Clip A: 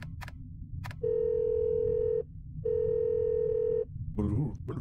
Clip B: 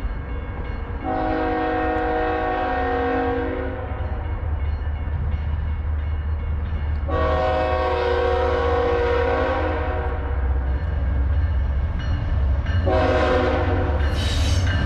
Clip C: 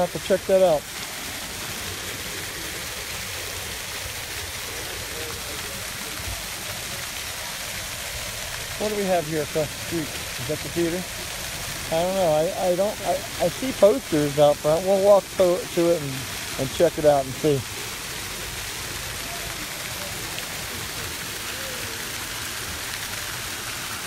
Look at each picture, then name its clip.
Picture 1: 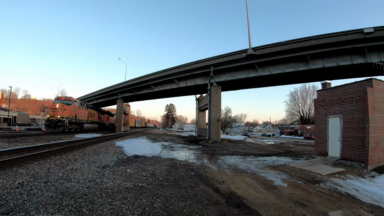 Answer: B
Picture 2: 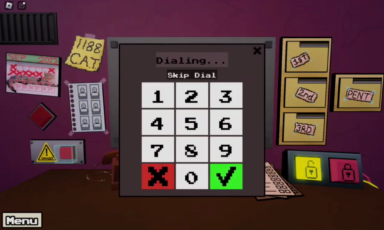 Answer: A